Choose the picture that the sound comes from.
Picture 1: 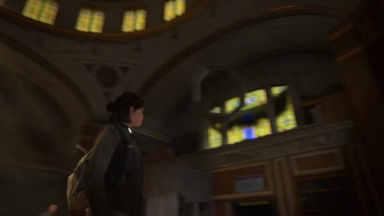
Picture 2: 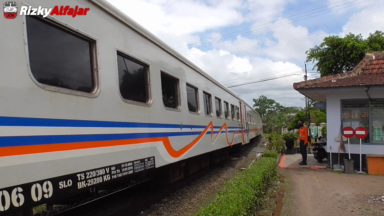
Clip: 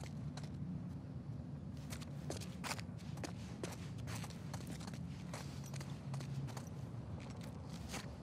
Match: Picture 1